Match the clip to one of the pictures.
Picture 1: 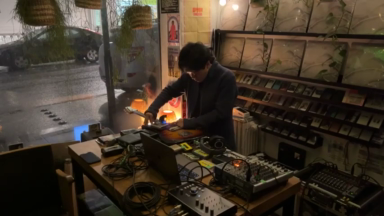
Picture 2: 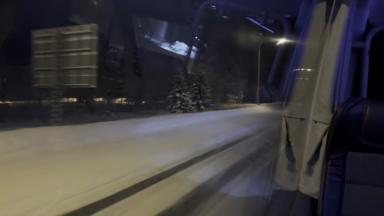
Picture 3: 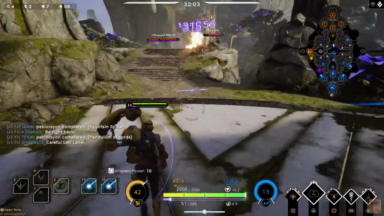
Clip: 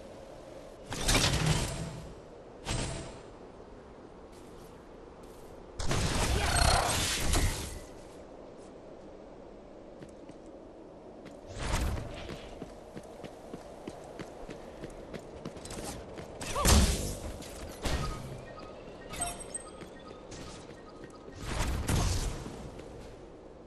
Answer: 3